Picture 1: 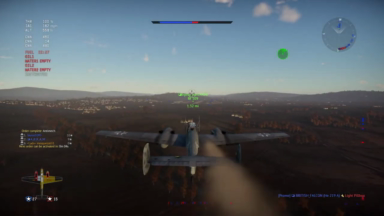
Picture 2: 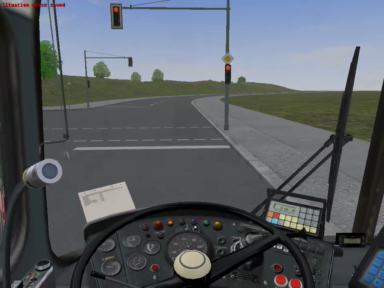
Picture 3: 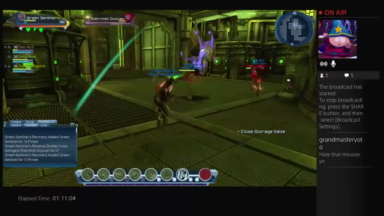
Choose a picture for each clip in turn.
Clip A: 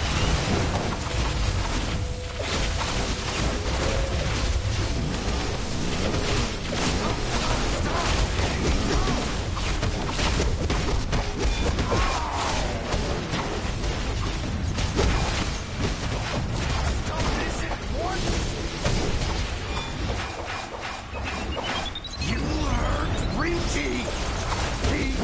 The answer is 3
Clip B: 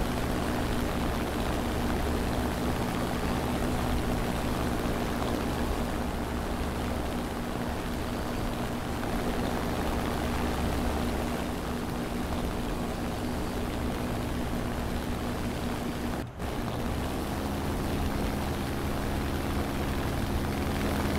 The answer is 1